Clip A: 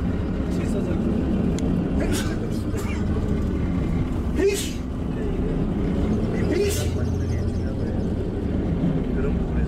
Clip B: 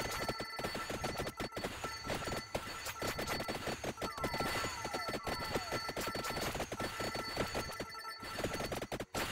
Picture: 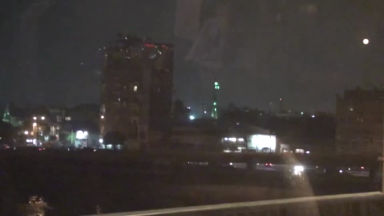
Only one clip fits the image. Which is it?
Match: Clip A